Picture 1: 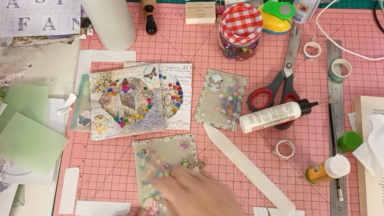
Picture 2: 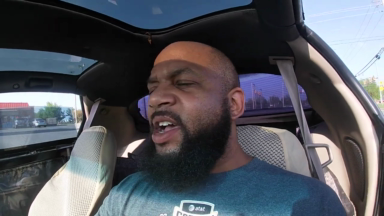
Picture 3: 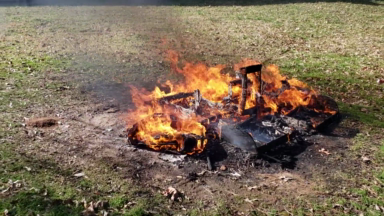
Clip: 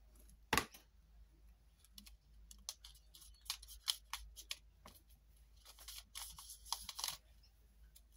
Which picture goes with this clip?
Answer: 1